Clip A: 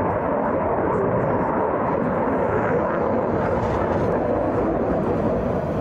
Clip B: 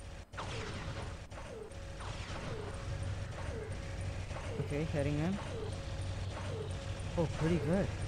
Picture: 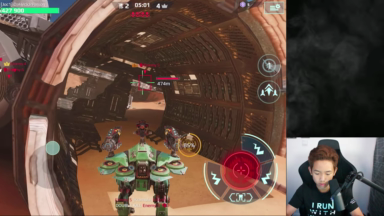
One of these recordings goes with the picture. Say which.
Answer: B